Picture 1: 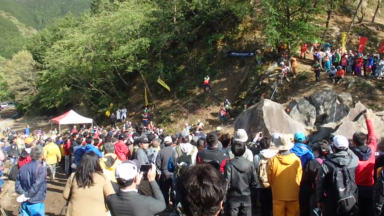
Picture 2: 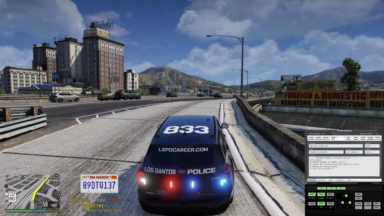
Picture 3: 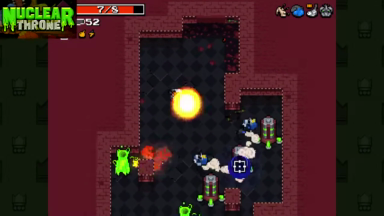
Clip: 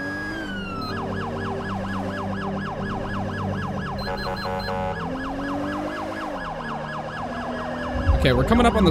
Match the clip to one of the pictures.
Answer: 2